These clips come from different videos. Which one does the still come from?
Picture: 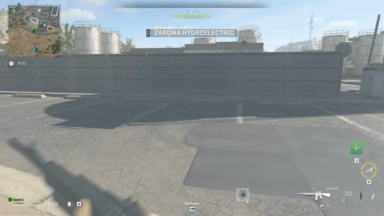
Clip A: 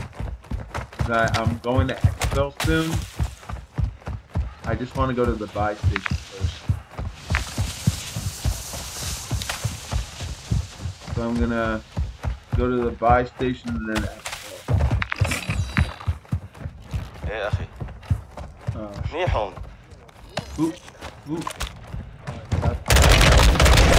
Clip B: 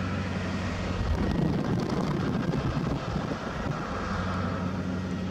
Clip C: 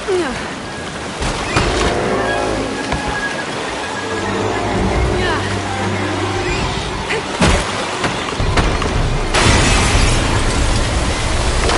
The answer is A